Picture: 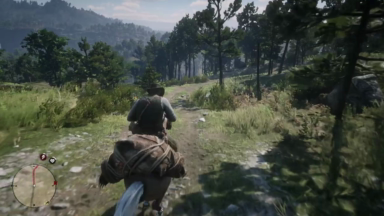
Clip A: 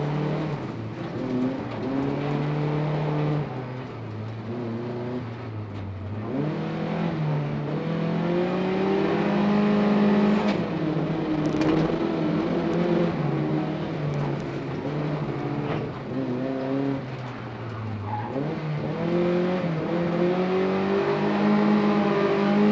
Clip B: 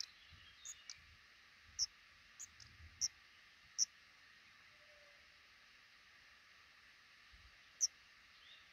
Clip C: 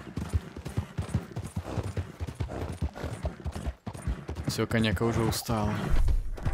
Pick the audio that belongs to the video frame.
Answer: C